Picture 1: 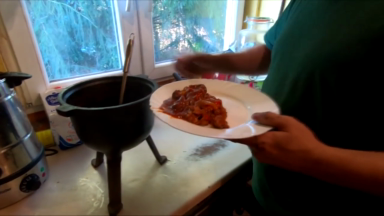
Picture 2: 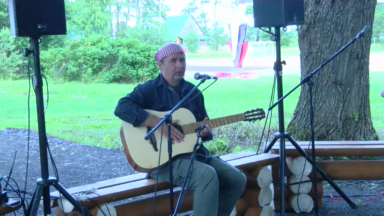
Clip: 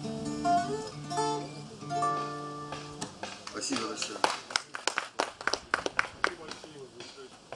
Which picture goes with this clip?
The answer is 2